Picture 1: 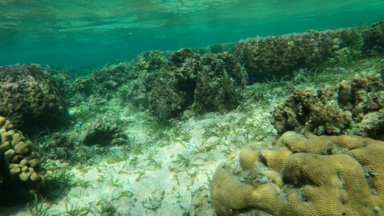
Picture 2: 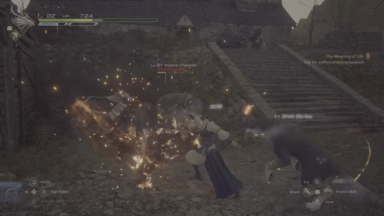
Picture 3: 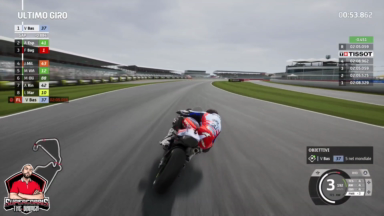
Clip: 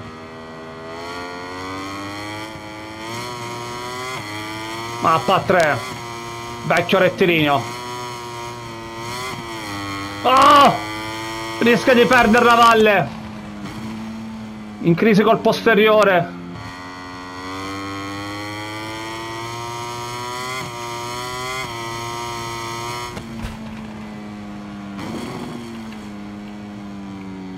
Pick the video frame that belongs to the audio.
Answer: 3